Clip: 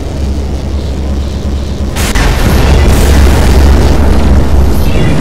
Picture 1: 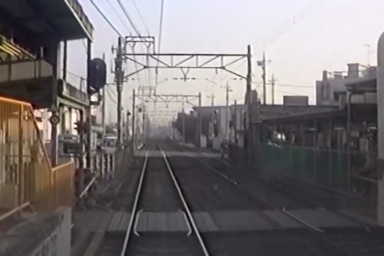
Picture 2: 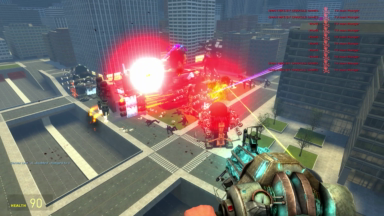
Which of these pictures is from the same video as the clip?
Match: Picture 2